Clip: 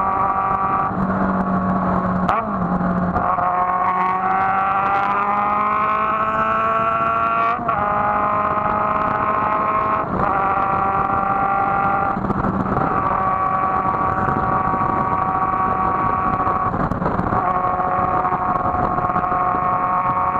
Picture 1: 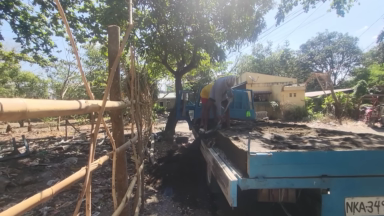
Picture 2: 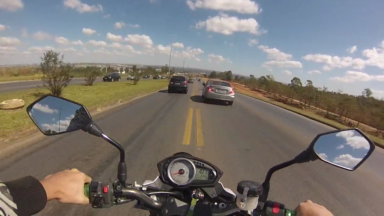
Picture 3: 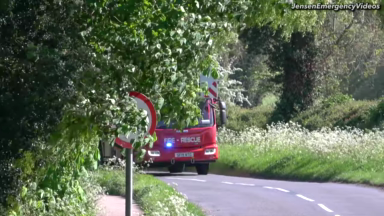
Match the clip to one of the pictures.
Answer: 2